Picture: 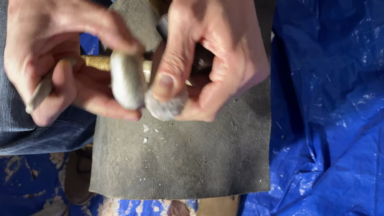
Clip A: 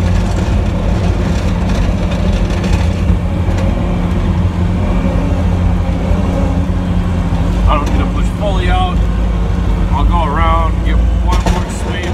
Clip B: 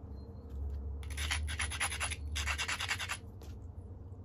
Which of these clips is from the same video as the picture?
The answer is B